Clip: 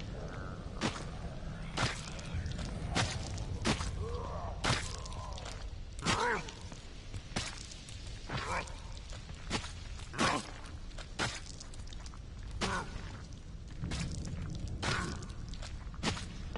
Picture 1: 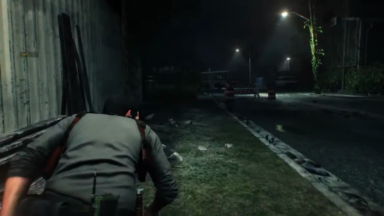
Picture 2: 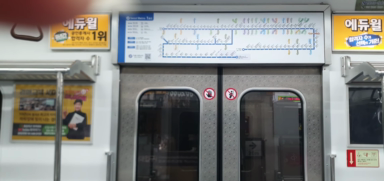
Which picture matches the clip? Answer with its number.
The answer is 1